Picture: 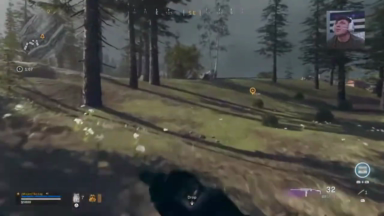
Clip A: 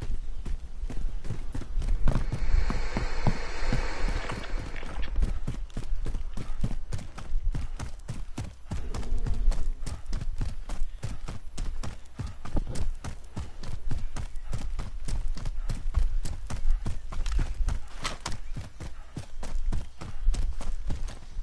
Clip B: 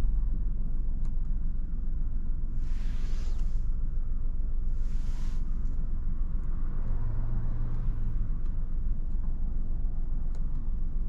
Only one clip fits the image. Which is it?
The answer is A